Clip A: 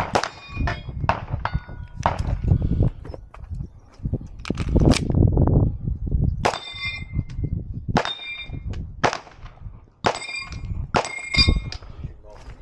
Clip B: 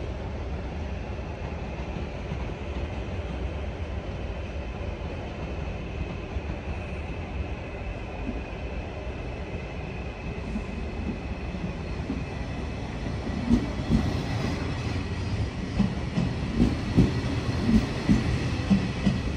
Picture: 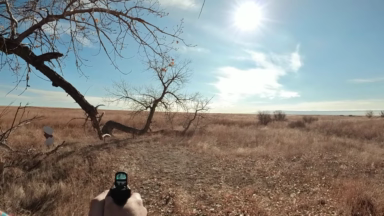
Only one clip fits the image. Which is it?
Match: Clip A